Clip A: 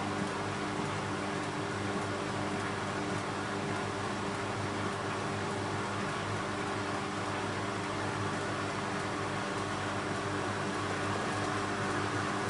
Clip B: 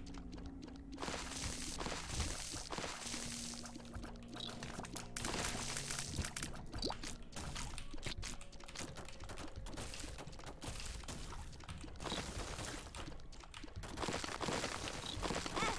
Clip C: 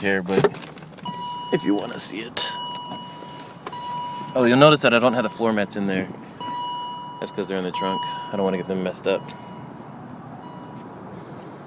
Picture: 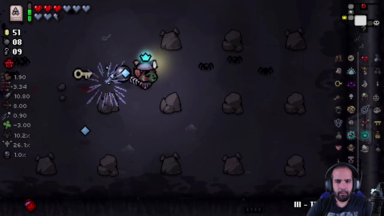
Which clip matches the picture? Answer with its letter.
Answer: B